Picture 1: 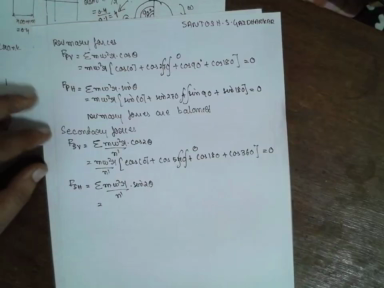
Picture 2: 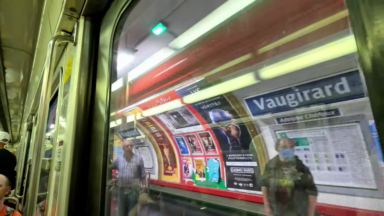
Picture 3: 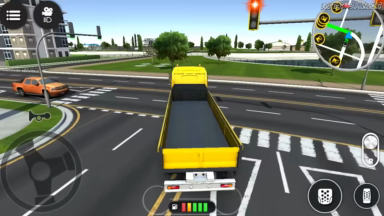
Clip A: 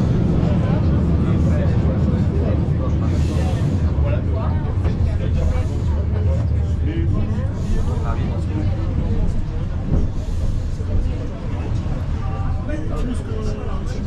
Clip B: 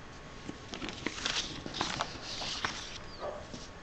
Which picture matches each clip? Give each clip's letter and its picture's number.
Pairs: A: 2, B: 1